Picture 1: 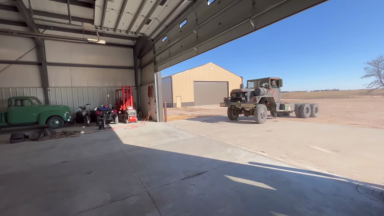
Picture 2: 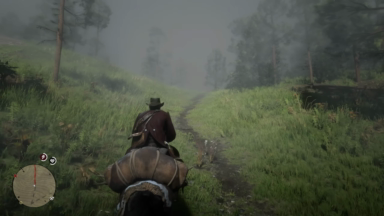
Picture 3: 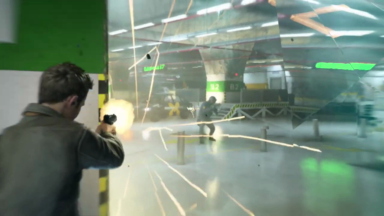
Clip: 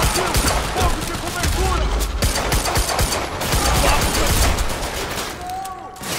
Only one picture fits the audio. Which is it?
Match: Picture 3